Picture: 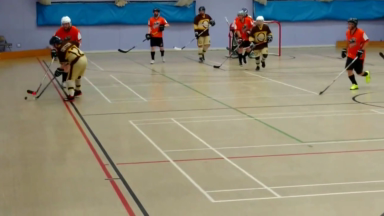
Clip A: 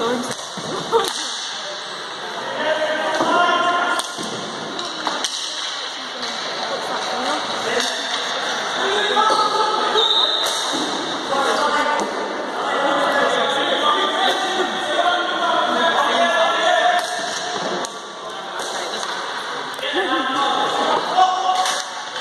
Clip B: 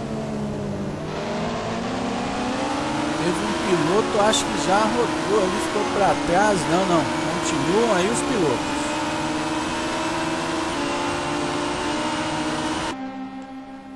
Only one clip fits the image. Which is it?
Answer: A